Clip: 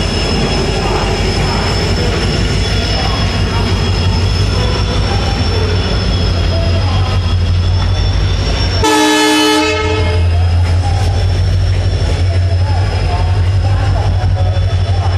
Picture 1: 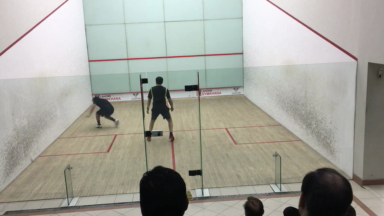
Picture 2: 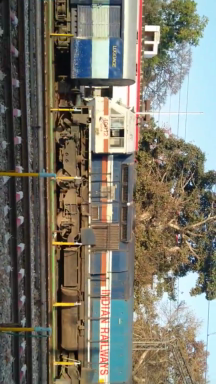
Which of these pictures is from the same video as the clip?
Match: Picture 2